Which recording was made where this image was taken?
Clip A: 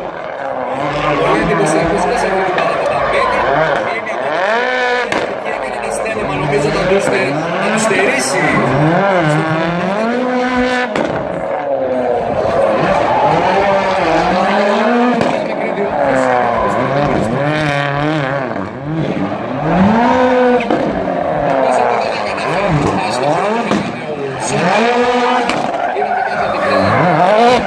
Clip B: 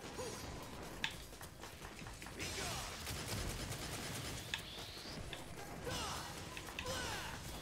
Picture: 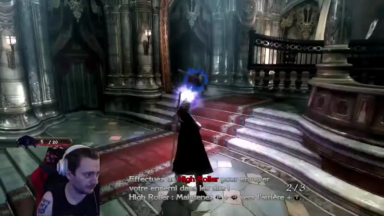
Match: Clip B